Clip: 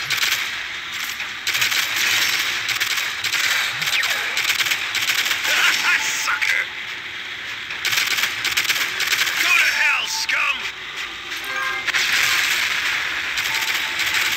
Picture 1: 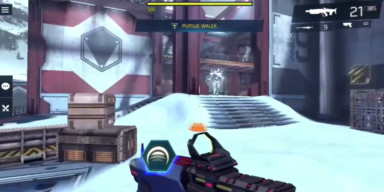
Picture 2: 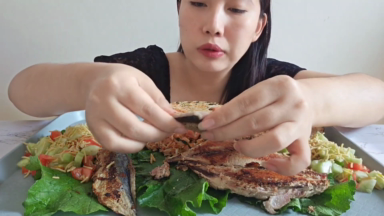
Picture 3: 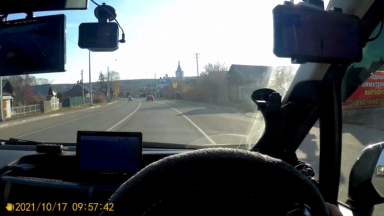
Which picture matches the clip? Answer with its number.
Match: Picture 1